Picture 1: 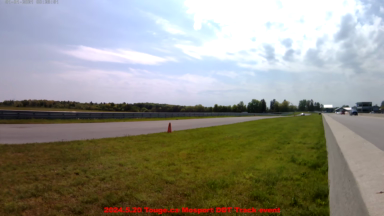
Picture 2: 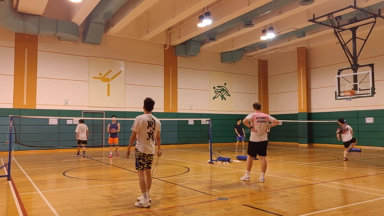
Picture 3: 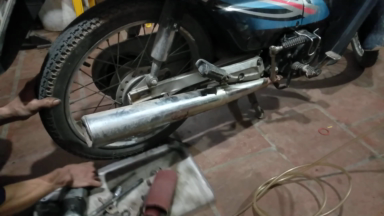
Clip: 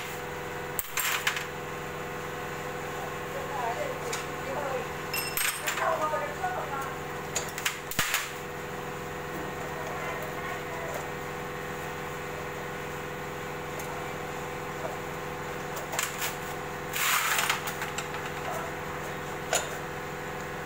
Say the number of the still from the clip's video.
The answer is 3